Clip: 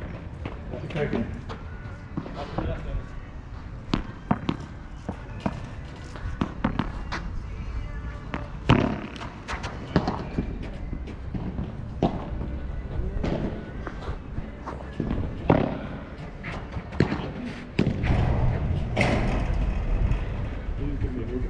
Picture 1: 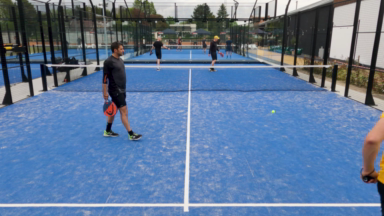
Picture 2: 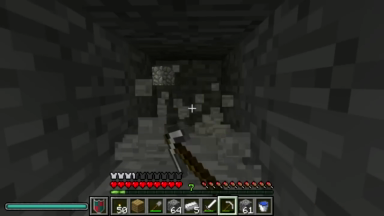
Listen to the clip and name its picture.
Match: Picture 1